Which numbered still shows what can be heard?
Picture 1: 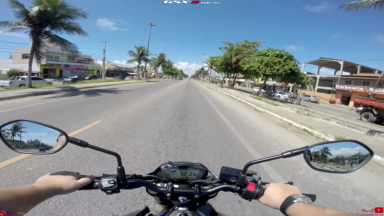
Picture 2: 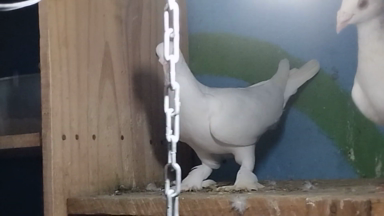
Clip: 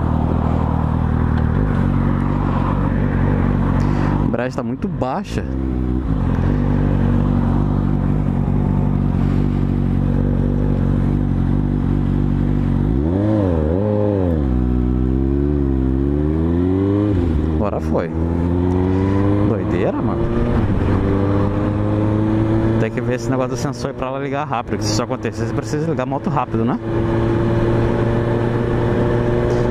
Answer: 1